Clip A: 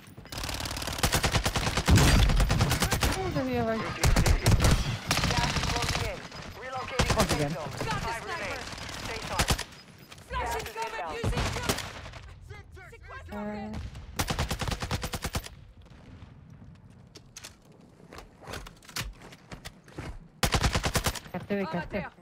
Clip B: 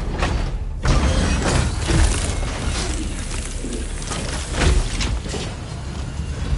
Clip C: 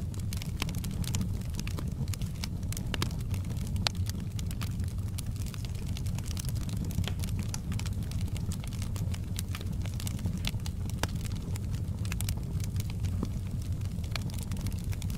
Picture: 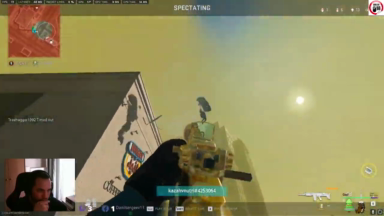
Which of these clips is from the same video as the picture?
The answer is A